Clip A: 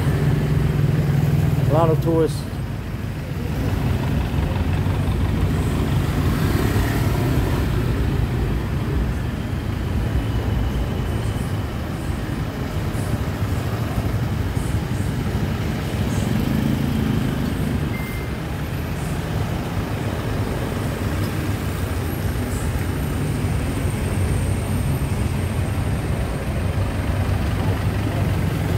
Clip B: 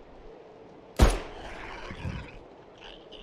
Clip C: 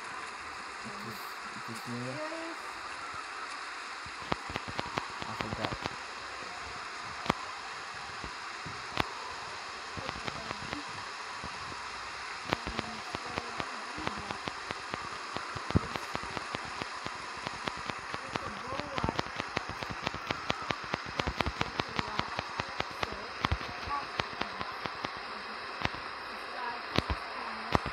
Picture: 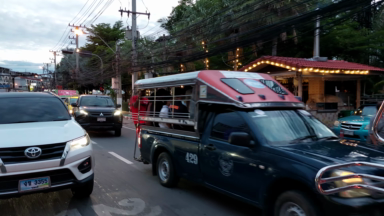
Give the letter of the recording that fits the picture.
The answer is A